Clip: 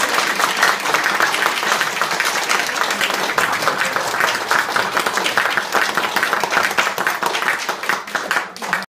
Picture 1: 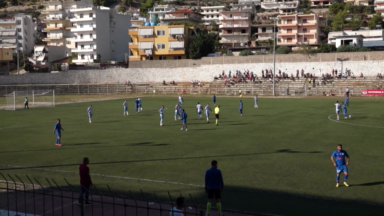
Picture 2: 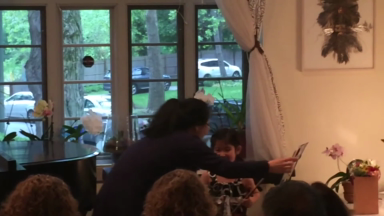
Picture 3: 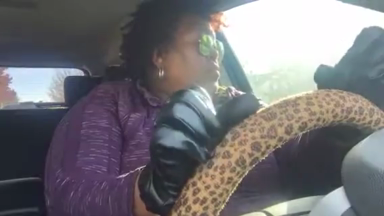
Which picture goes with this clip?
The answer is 2